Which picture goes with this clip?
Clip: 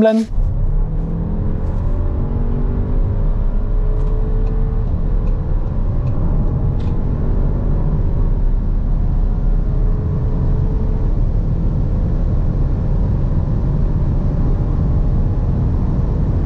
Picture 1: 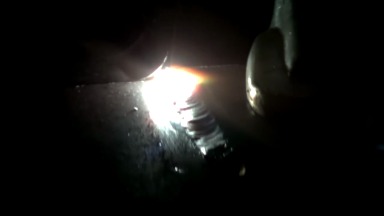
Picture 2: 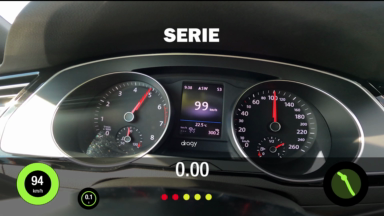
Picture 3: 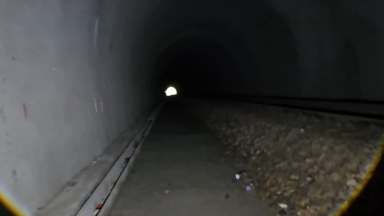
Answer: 2